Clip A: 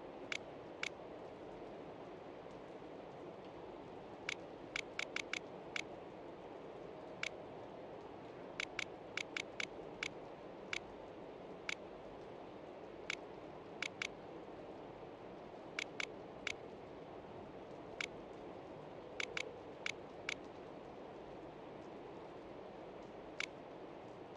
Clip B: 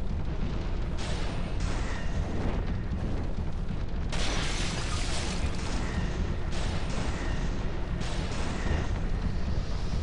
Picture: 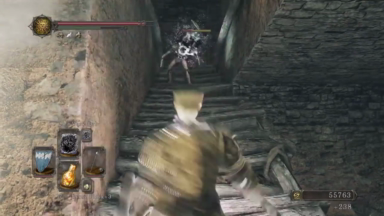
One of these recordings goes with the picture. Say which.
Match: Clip B